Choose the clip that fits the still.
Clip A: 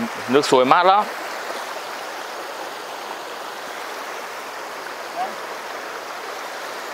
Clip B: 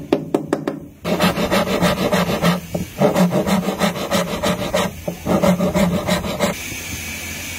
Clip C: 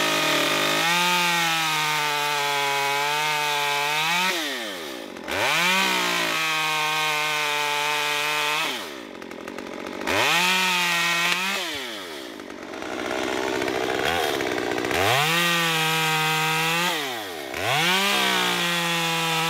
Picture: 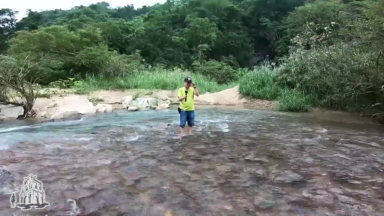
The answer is A